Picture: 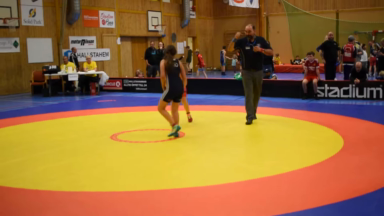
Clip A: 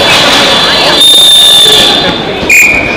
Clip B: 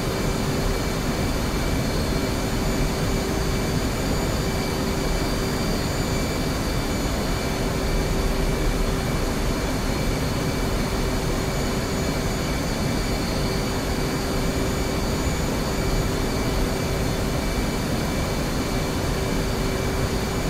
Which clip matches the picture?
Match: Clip A